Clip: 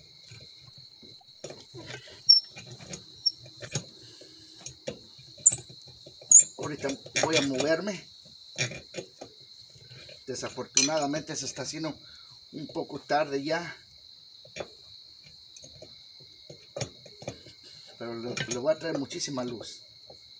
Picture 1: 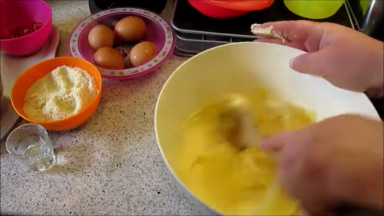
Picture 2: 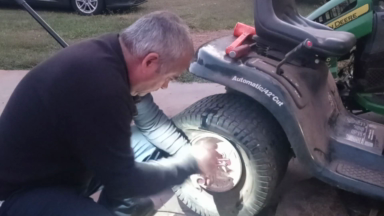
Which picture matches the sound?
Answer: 2